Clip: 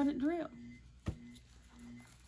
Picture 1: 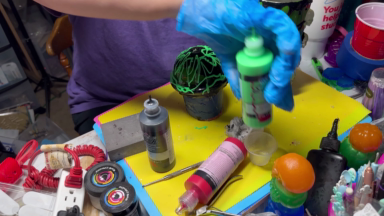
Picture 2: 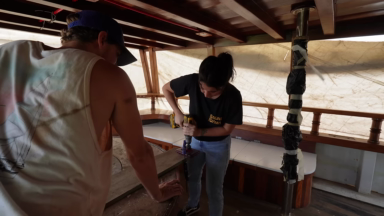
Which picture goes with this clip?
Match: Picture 1